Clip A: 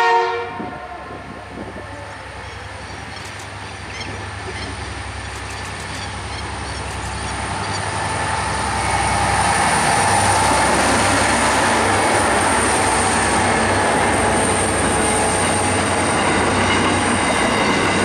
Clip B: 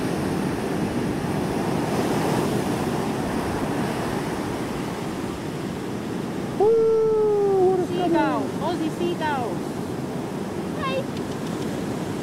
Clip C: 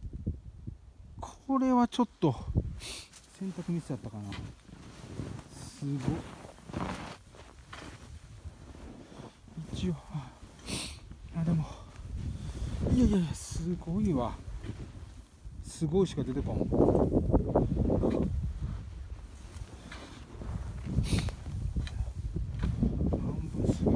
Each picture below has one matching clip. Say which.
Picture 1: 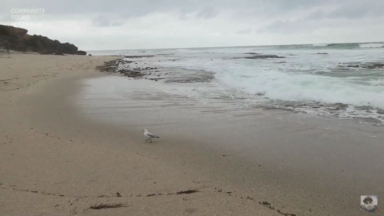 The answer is B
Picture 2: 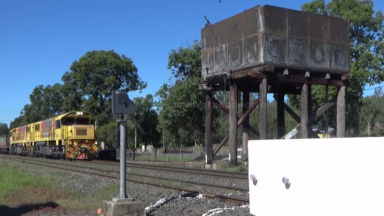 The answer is A